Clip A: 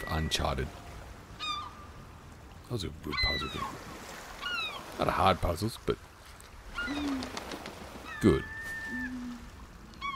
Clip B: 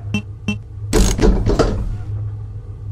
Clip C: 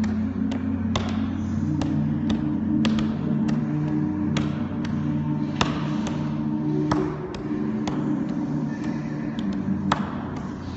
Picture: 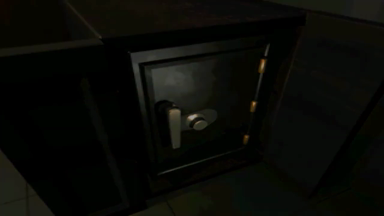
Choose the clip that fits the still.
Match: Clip B